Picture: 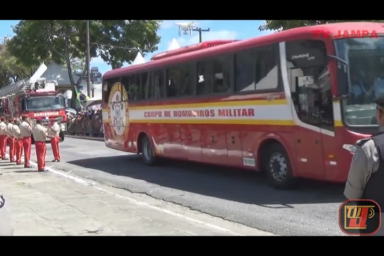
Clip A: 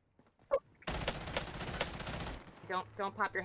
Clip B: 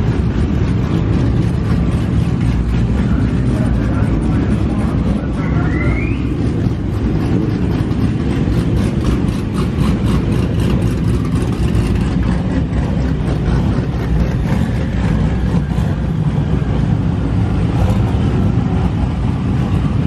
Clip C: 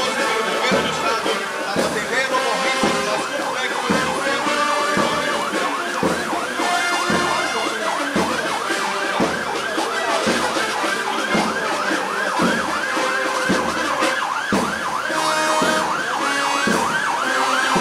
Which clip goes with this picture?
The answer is C